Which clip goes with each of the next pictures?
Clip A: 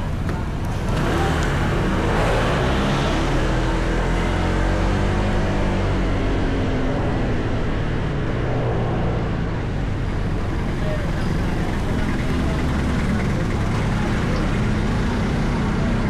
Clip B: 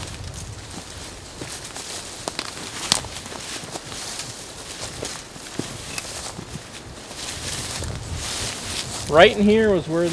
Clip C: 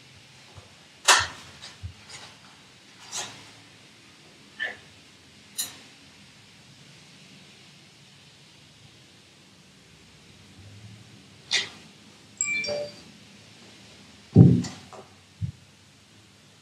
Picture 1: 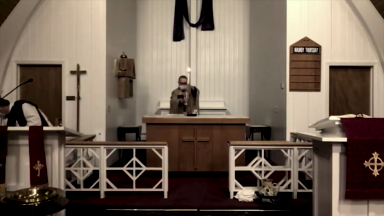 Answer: C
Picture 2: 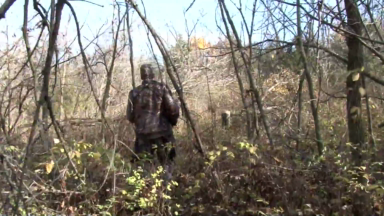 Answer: B